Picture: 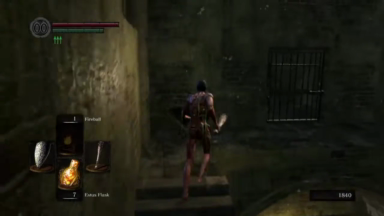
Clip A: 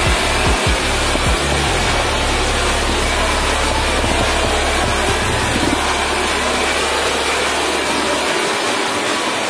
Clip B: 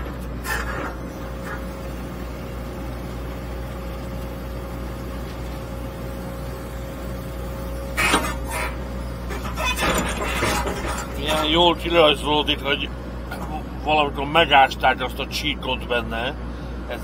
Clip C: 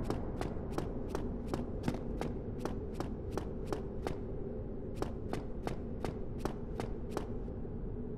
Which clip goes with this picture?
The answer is C